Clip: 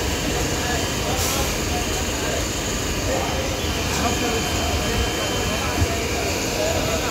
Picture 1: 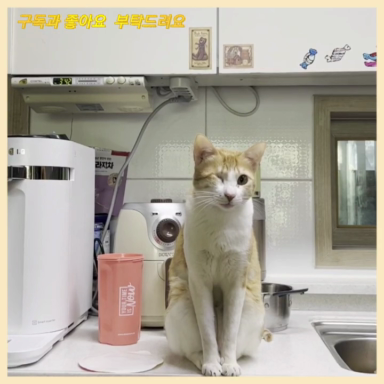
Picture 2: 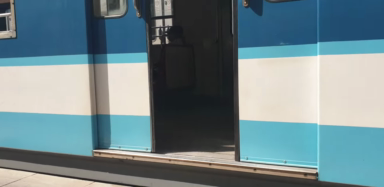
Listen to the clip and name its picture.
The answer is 2